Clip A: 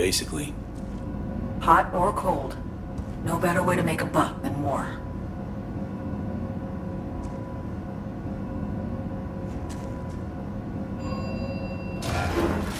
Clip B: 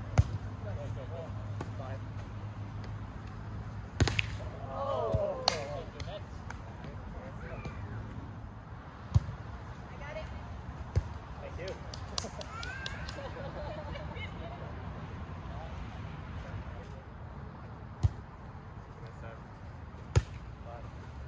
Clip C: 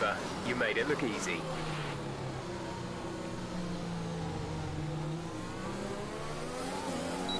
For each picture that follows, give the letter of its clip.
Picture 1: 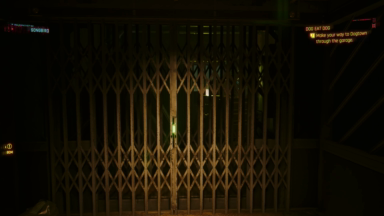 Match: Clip A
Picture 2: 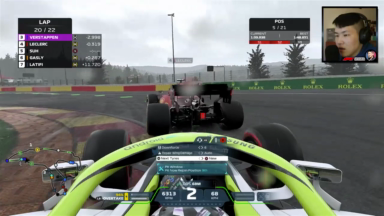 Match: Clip C